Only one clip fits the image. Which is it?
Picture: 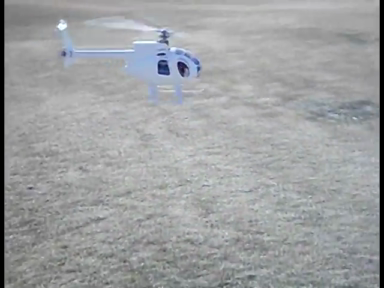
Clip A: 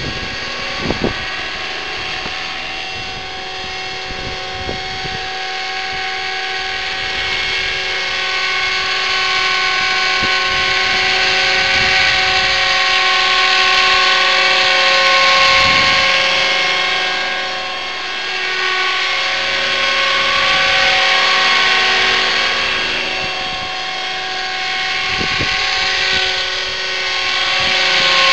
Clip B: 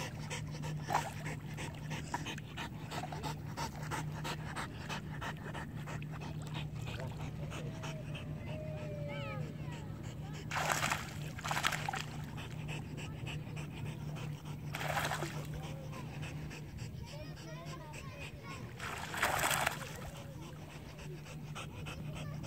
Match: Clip A